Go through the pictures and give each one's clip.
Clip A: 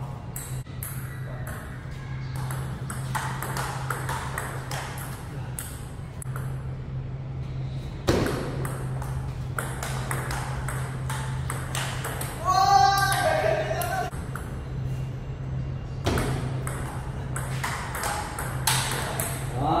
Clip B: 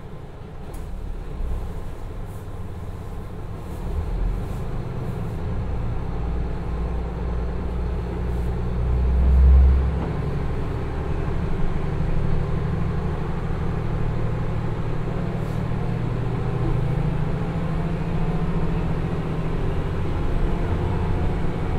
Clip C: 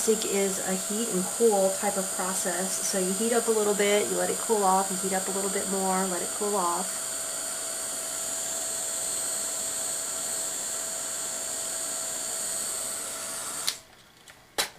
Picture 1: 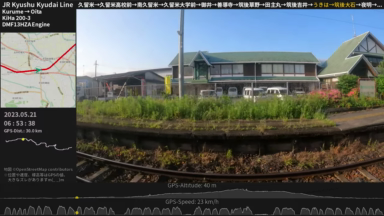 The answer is B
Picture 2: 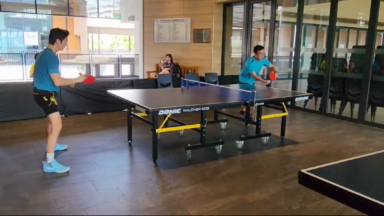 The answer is A